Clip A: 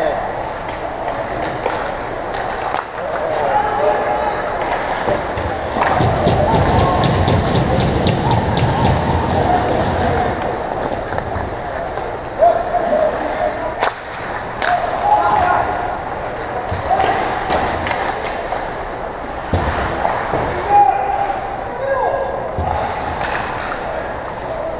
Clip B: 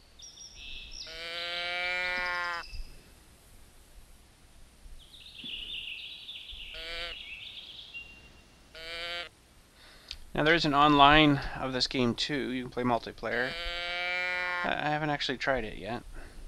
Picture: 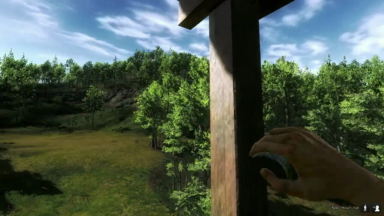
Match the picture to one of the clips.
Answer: B